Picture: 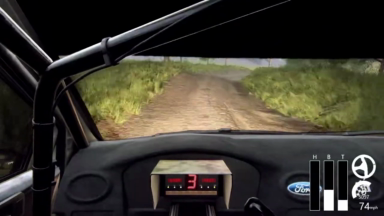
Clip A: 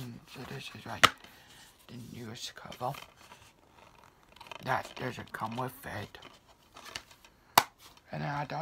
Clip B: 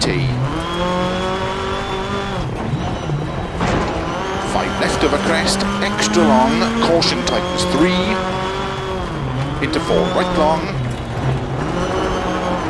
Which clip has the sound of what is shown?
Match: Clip B